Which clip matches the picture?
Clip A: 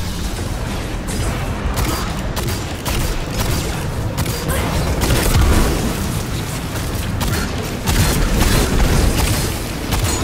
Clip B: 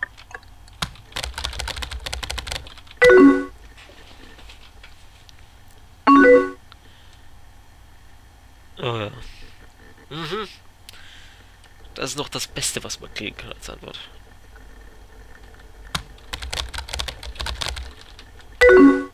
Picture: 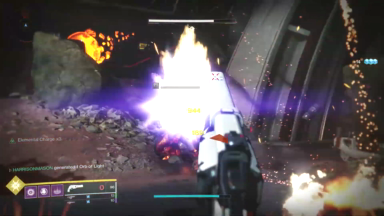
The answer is A